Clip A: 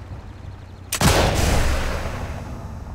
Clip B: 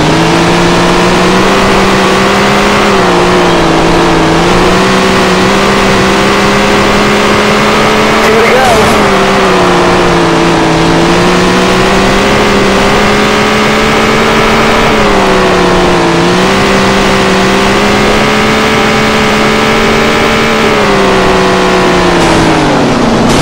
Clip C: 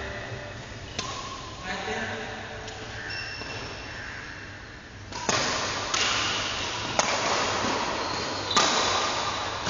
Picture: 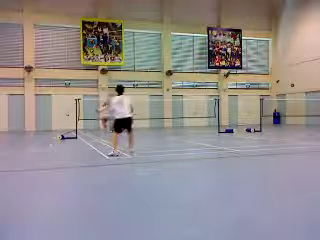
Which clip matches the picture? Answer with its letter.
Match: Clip C